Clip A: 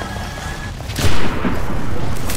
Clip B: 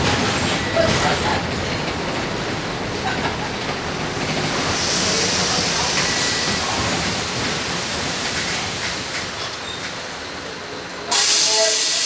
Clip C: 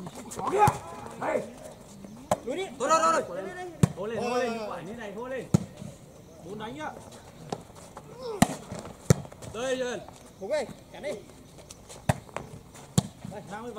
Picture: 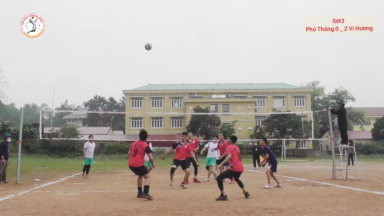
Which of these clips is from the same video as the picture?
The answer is C